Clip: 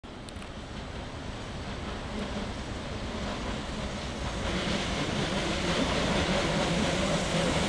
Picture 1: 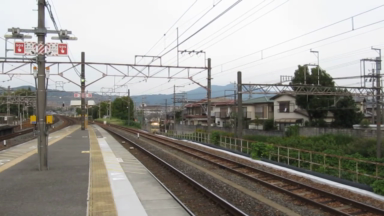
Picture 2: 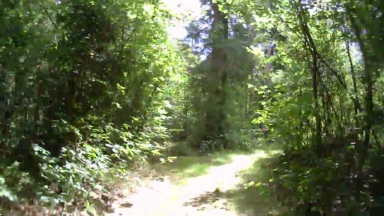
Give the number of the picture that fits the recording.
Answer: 1